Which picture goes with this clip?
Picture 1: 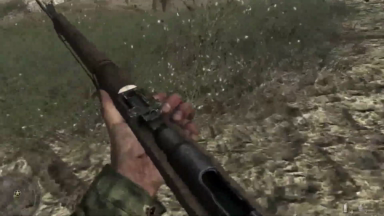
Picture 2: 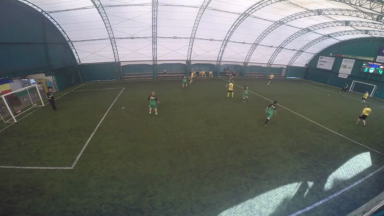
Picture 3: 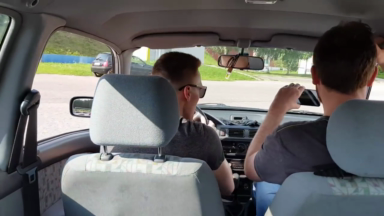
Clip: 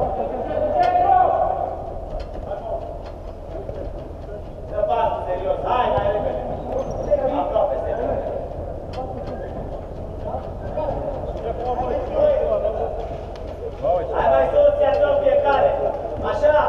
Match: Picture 2